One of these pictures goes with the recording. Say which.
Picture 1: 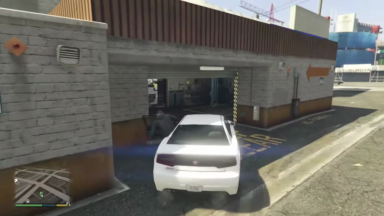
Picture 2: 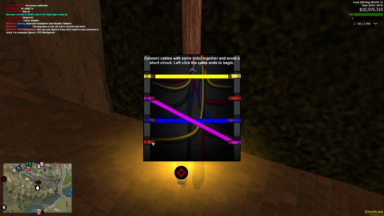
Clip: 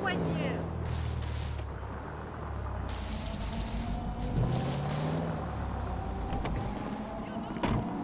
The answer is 1